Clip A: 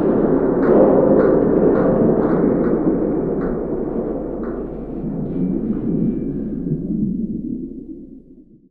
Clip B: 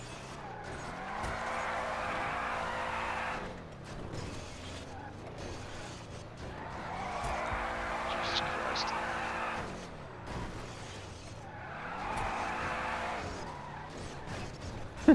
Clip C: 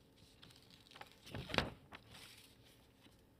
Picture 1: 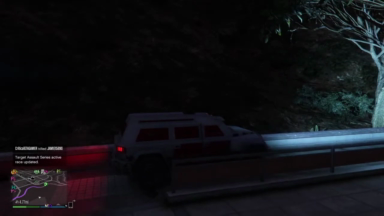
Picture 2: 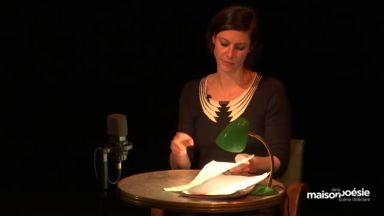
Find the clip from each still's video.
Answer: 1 B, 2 C